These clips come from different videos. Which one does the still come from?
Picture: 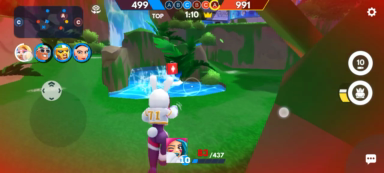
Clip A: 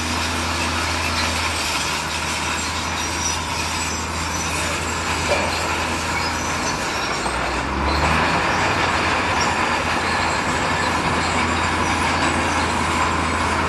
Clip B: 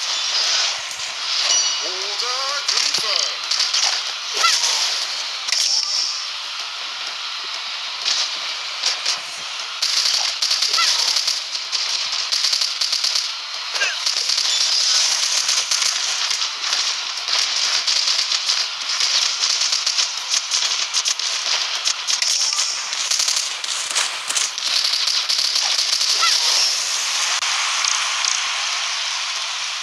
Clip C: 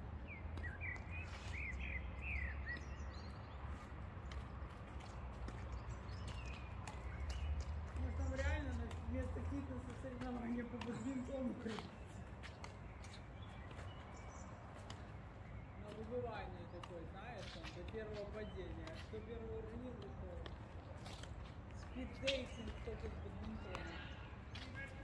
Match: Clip B